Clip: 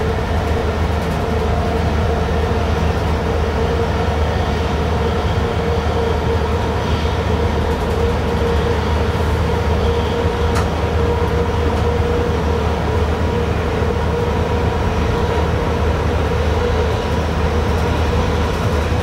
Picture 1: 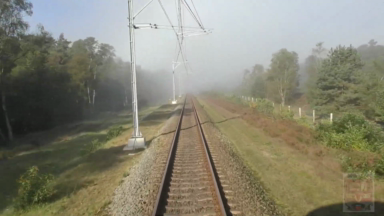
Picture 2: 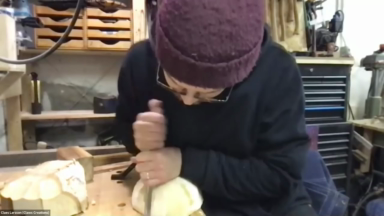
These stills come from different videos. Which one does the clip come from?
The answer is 1